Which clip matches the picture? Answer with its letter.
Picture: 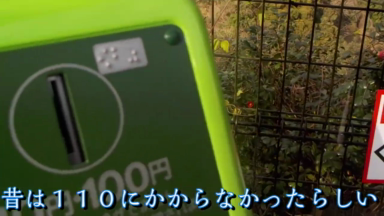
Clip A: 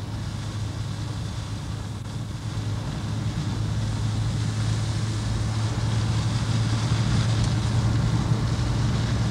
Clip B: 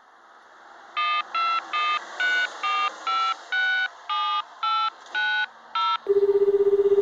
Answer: B